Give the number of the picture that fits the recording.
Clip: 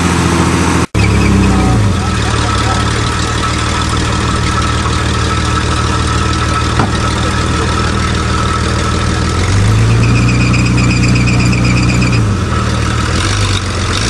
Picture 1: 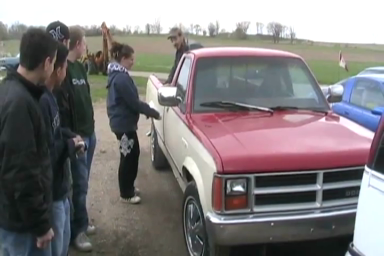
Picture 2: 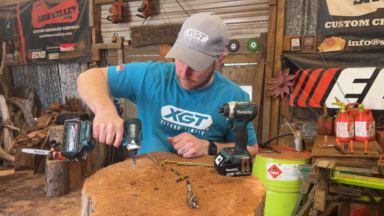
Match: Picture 1